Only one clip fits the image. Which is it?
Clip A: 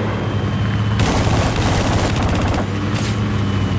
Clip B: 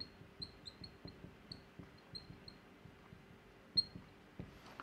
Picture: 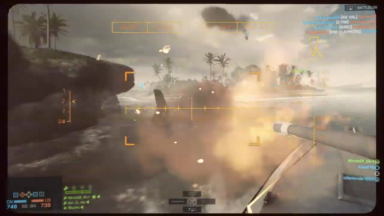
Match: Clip A